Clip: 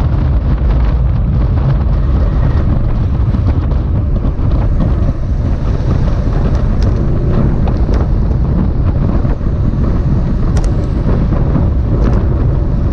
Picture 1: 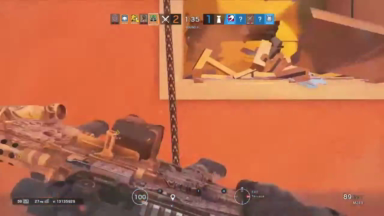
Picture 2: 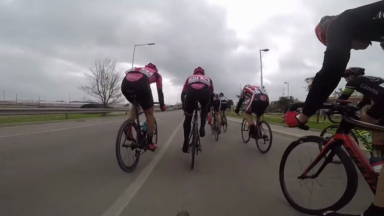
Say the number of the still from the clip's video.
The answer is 2